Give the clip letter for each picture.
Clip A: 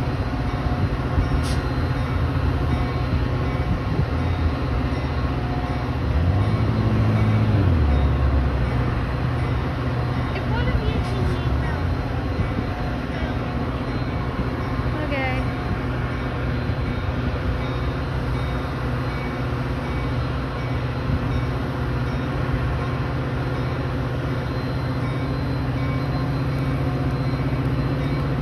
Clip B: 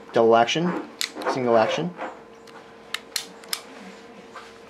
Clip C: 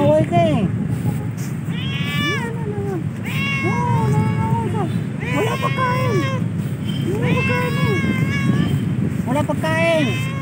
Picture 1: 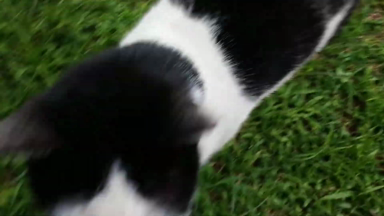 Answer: C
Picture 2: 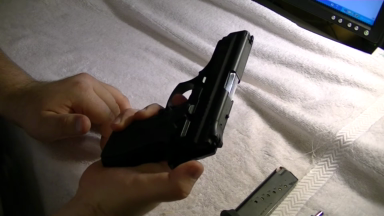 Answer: B